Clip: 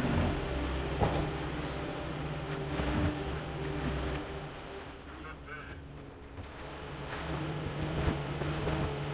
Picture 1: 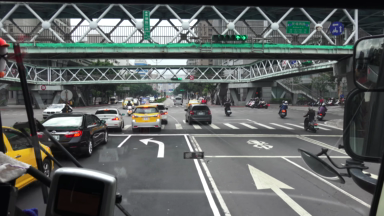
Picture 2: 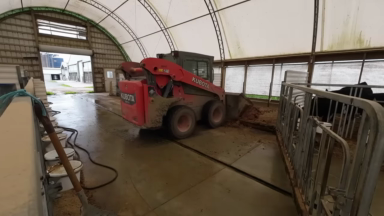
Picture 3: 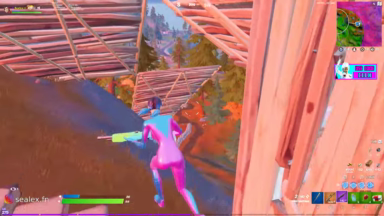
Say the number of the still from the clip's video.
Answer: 2